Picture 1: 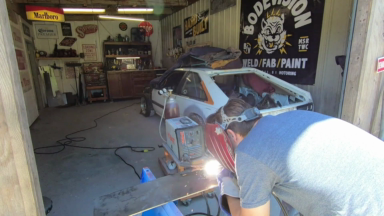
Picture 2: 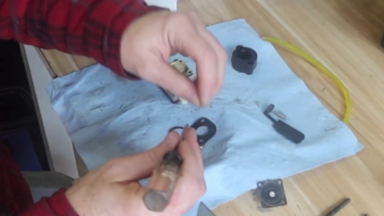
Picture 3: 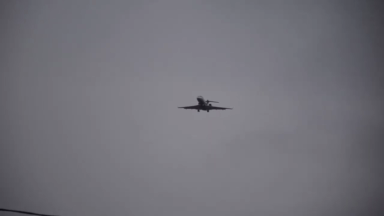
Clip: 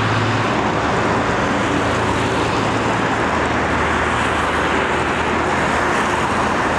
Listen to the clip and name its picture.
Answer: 3